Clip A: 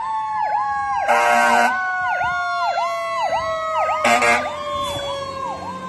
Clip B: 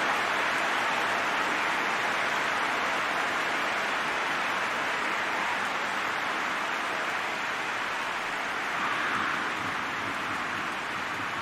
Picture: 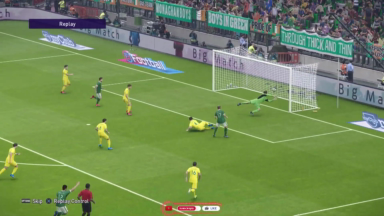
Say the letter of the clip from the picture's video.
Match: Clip B